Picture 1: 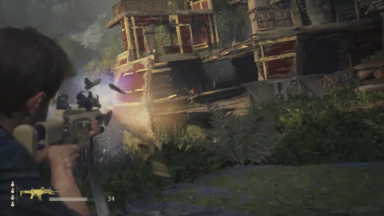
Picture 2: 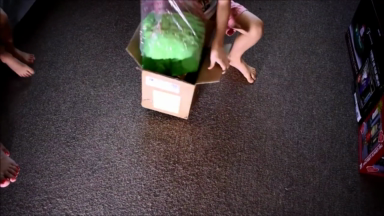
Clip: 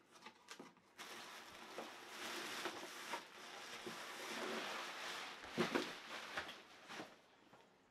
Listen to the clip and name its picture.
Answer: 2